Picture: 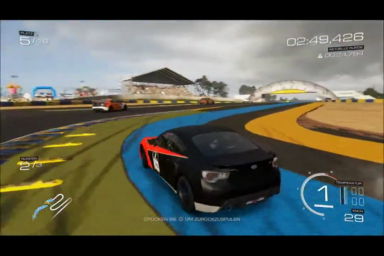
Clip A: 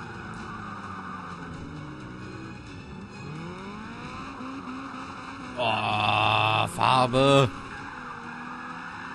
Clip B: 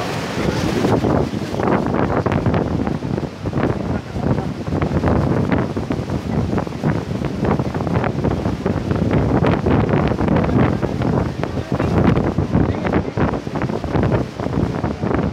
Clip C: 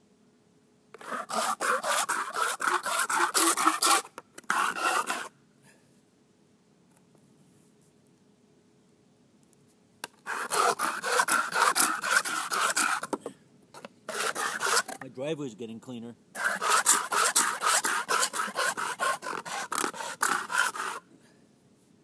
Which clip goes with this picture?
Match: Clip A